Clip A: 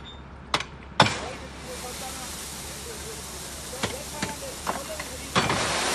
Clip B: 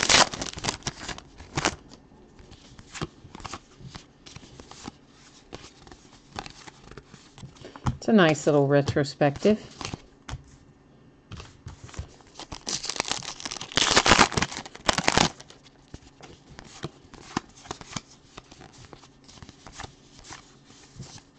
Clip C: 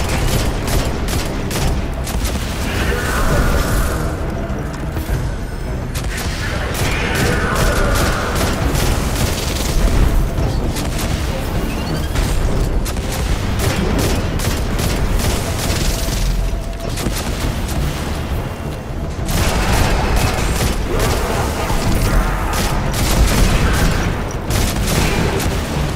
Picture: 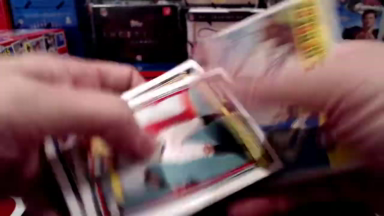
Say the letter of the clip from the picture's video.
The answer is B